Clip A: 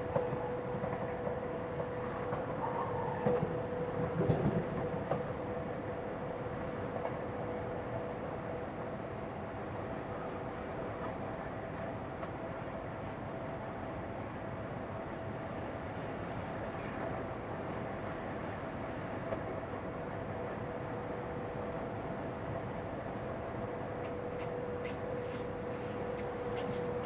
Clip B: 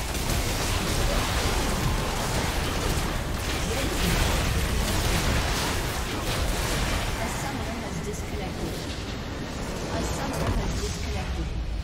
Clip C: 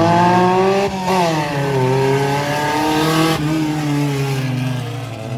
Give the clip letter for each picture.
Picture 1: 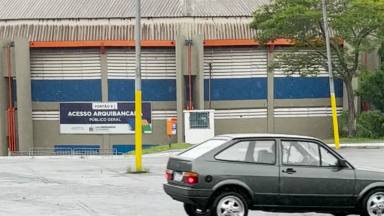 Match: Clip C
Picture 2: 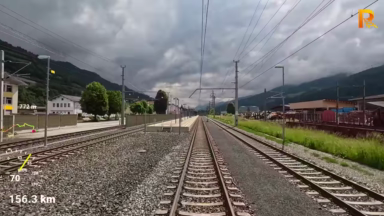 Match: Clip A